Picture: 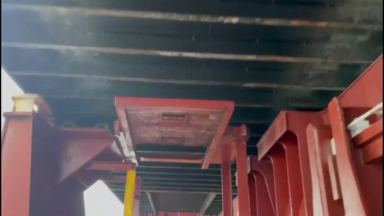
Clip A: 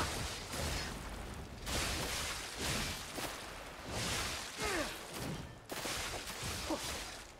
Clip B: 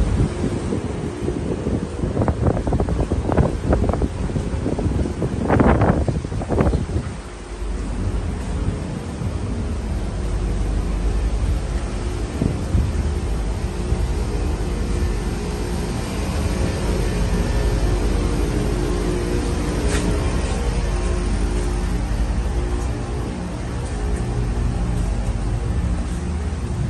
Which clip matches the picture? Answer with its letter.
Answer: B